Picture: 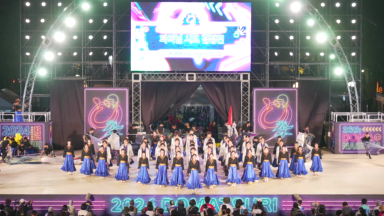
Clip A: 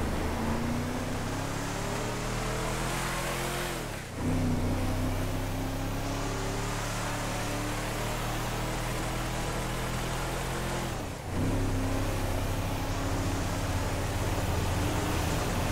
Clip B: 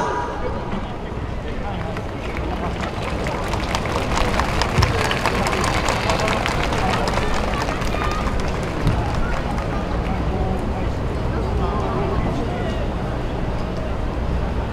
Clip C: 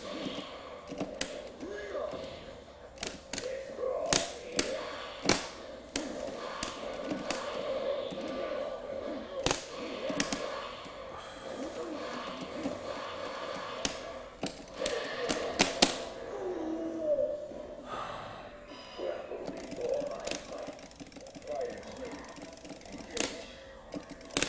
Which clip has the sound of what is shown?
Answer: B